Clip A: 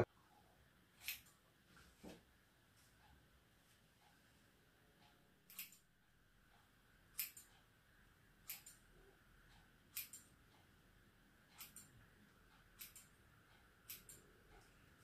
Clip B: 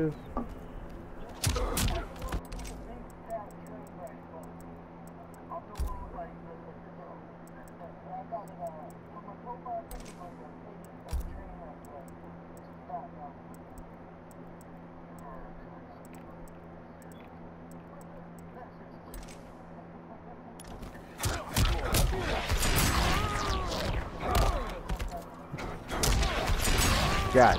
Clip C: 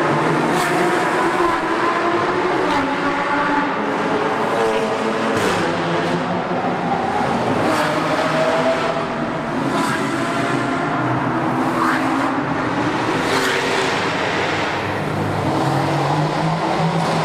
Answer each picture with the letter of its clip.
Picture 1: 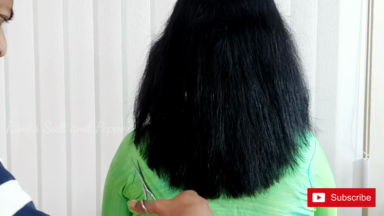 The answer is A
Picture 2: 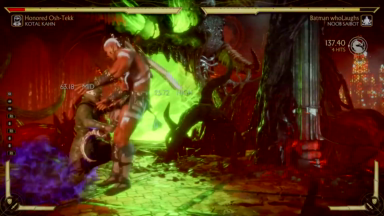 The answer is B